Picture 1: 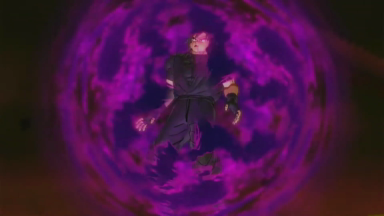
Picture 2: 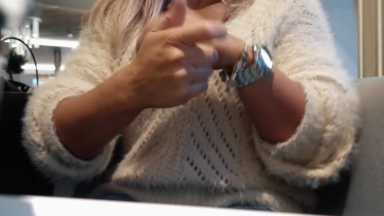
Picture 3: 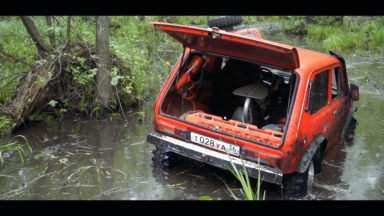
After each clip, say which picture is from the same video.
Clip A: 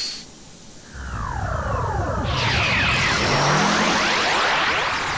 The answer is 1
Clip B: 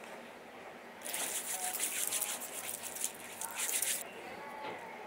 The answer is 2